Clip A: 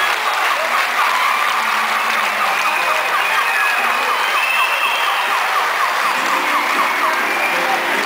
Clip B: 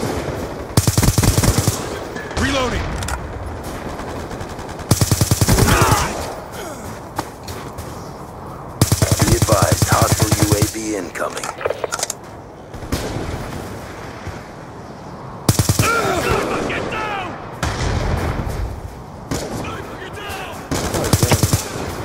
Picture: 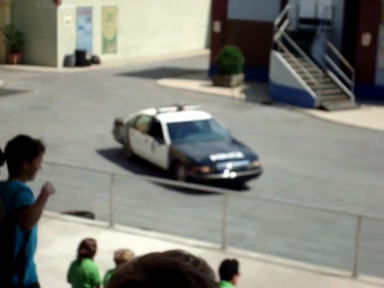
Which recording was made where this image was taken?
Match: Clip A